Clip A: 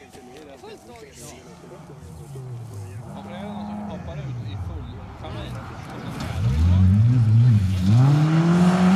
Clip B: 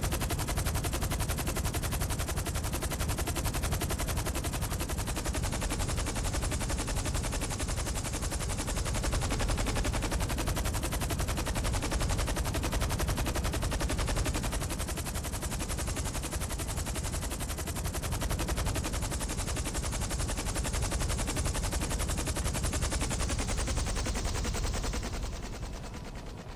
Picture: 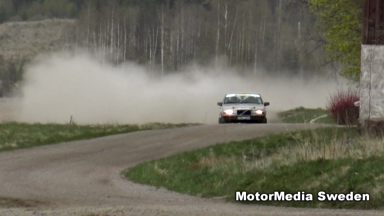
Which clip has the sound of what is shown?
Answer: A